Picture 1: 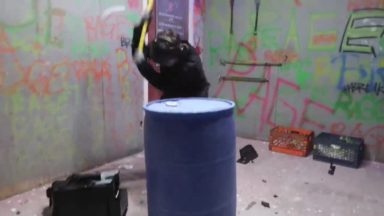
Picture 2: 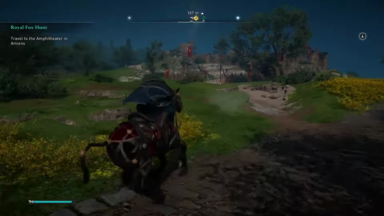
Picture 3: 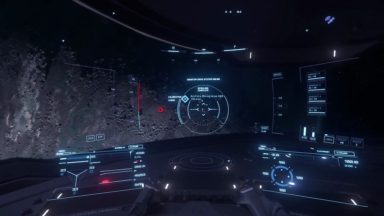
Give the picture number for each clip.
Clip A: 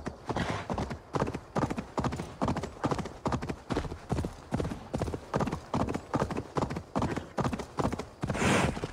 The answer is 2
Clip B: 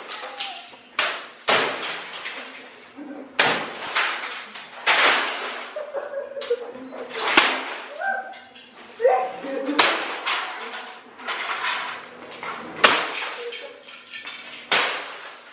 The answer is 1